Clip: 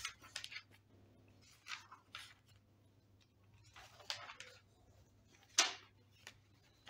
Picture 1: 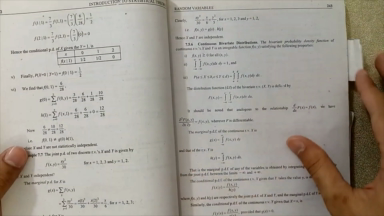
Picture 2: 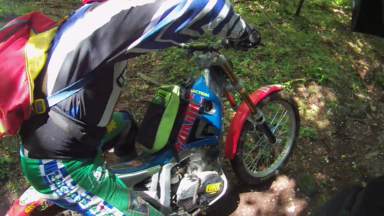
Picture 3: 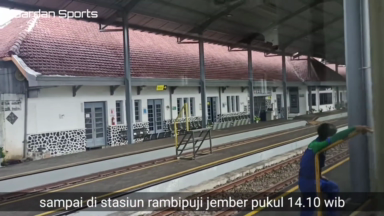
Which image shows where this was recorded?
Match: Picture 1